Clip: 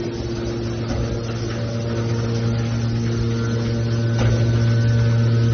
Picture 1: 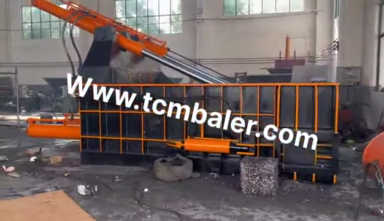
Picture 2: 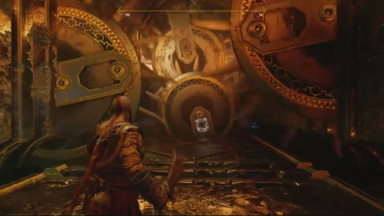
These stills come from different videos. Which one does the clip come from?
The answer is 1